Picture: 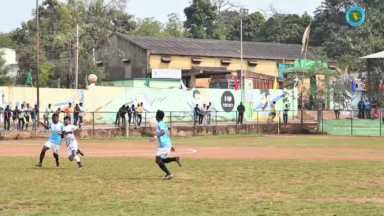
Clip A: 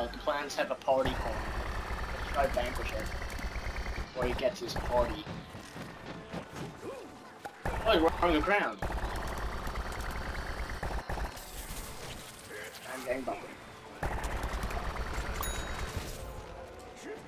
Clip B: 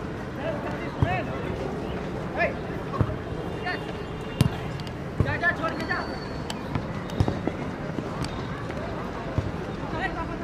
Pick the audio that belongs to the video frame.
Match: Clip B